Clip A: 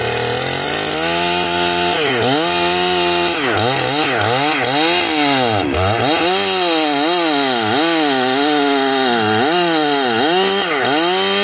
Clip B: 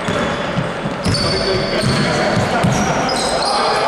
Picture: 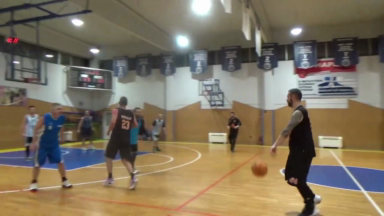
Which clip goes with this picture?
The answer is B